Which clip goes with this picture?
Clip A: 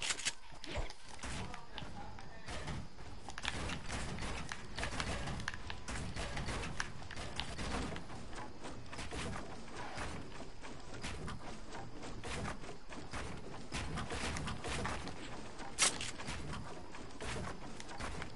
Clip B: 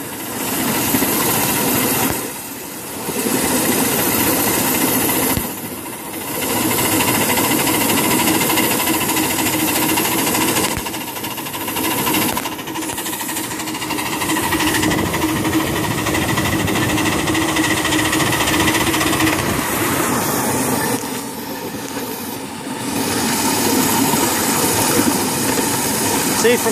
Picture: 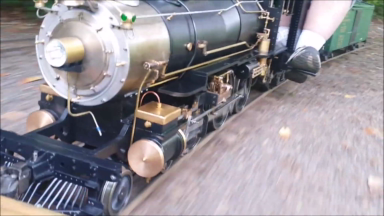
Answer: B